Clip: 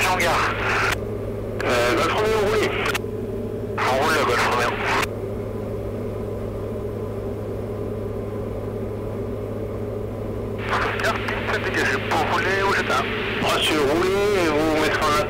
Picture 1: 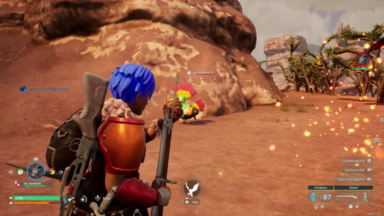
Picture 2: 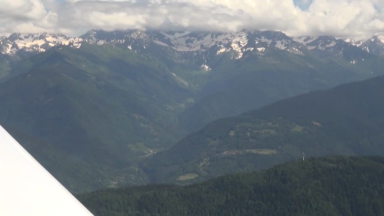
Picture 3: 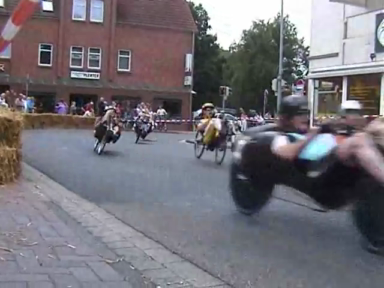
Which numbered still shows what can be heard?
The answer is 2